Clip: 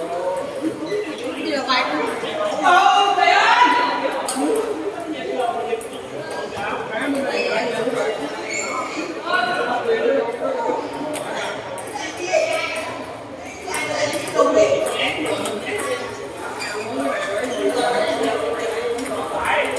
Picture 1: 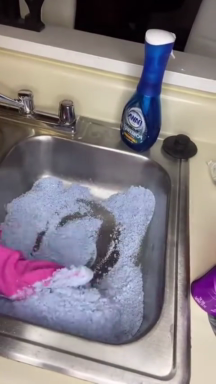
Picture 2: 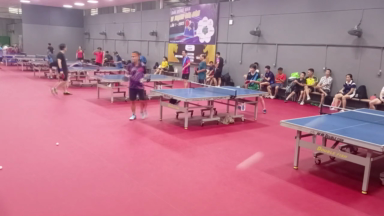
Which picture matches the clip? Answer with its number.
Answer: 2